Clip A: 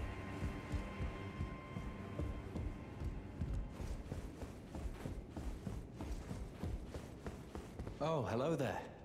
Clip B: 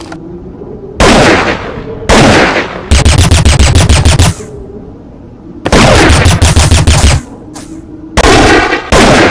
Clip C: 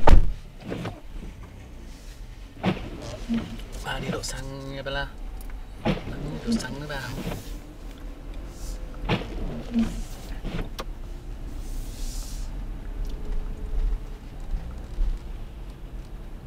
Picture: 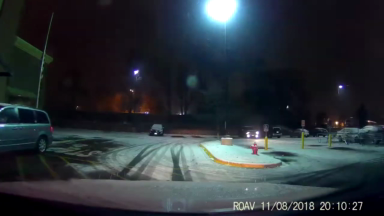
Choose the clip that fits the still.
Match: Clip C